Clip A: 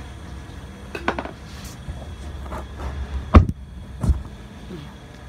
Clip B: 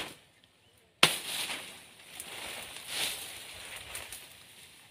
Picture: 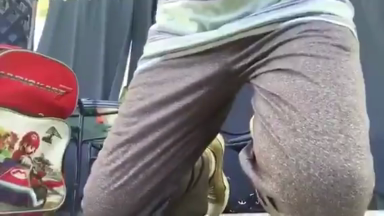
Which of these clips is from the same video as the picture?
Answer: A